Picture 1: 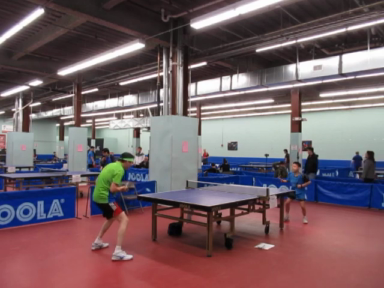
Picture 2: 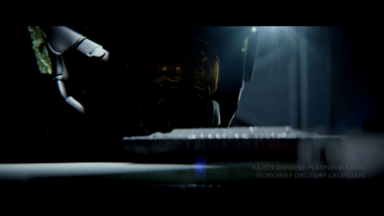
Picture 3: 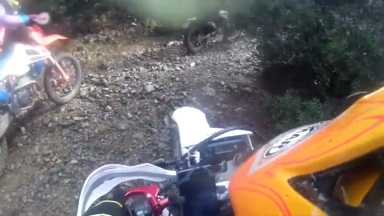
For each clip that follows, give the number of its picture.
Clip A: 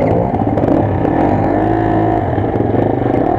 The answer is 3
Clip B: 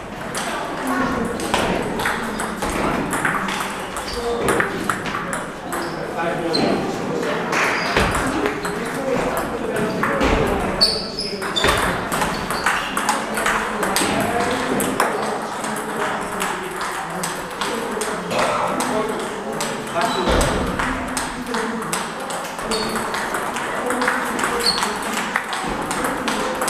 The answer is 1